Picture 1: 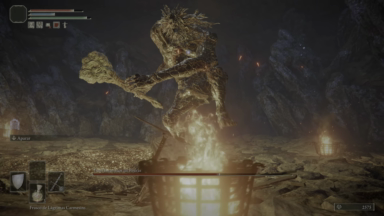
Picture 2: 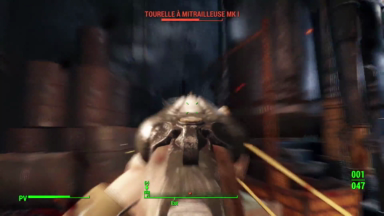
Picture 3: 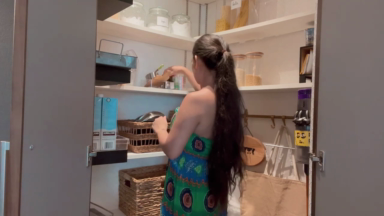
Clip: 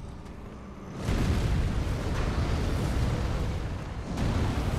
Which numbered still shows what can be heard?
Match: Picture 1